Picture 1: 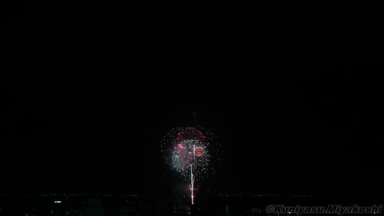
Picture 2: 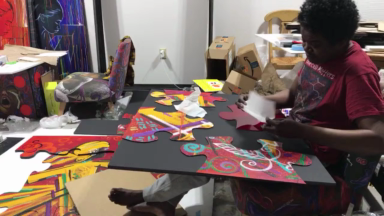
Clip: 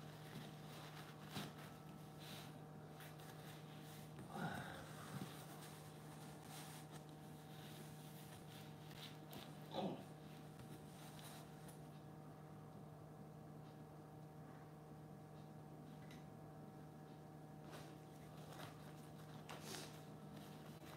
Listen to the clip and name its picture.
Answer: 2